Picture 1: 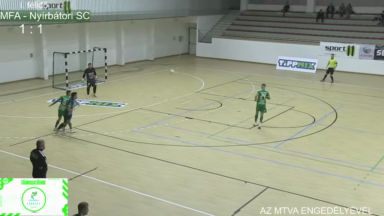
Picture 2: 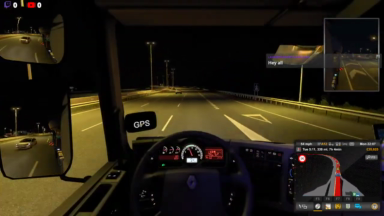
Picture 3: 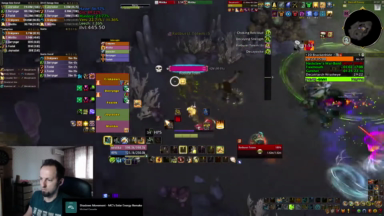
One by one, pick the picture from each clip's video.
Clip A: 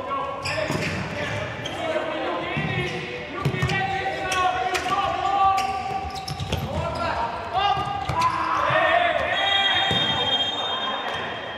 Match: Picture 1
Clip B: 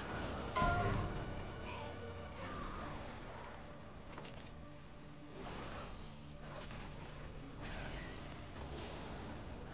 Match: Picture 3